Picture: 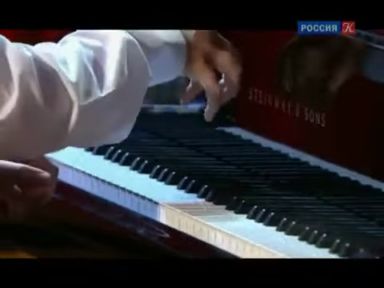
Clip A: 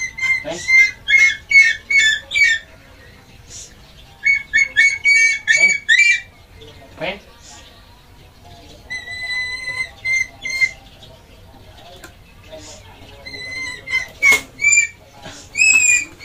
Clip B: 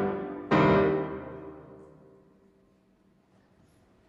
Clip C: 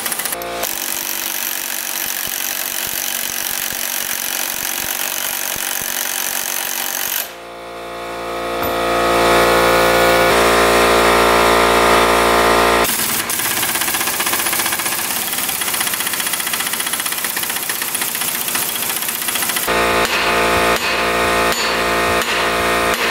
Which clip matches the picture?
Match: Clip B